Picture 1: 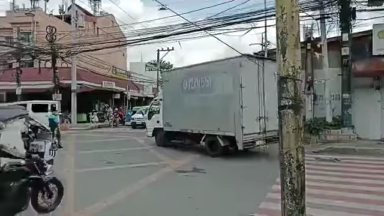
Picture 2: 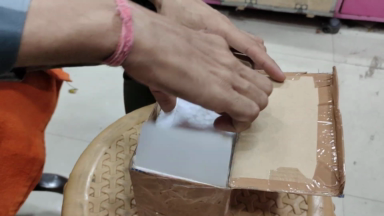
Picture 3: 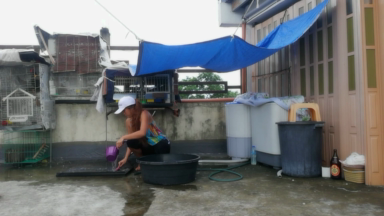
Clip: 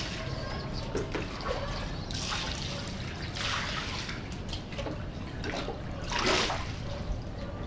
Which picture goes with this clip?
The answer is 3